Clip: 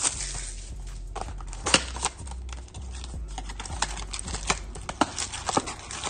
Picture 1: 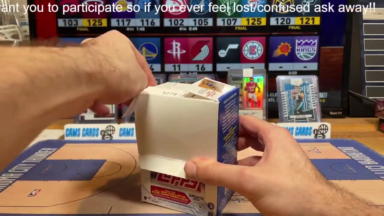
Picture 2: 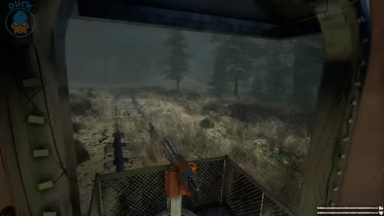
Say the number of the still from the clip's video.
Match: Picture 1